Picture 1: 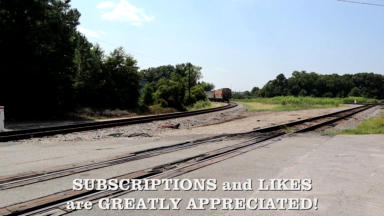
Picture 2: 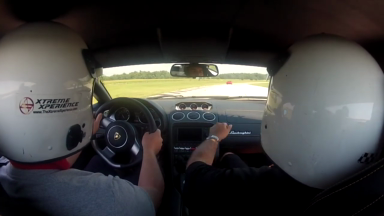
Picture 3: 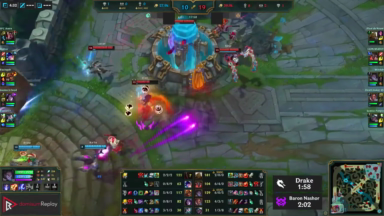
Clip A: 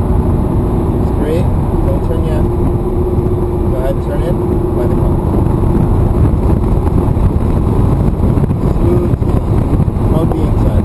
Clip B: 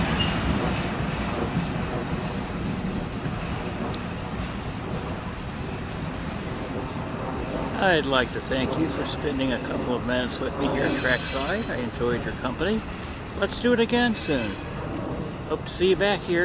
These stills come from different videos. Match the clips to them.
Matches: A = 2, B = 1